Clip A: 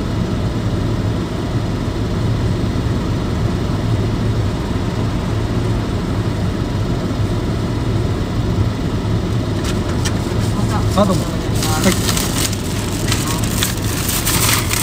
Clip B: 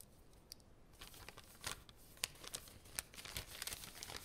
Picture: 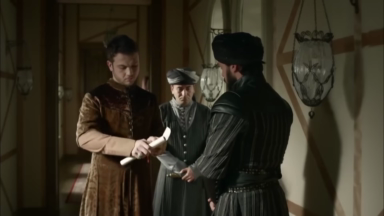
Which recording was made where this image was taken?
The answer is B